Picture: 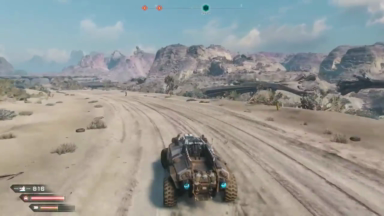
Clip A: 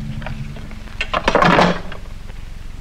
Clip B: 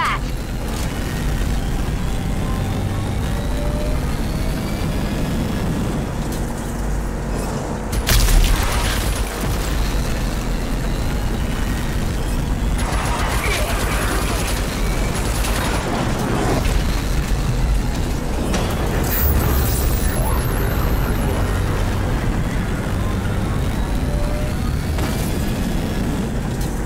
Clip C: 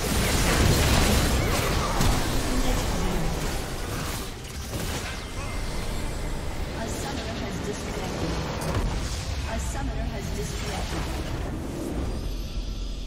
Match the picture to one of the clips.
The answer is B